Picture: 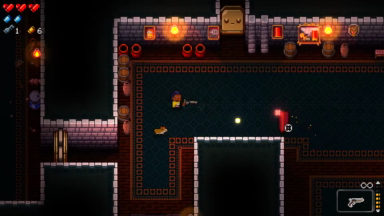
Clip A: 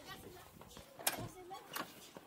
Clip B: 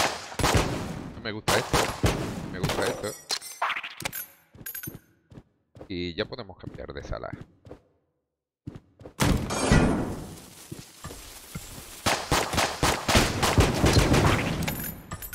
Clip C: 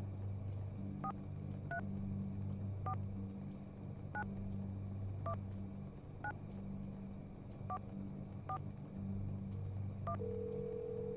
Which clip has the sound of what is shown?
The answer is B